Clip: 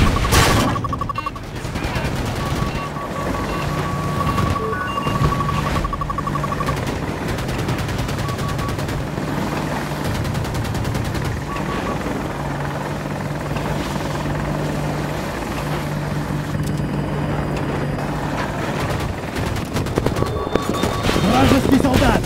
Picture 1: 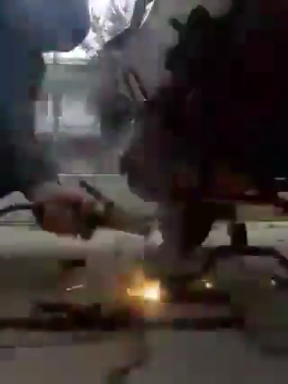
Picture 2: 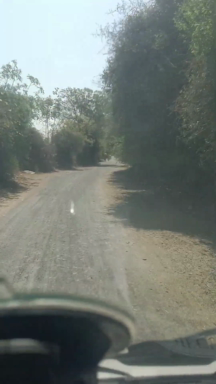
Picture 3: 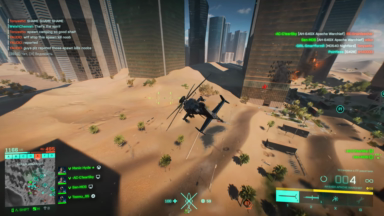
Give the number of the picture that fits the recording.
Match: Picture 3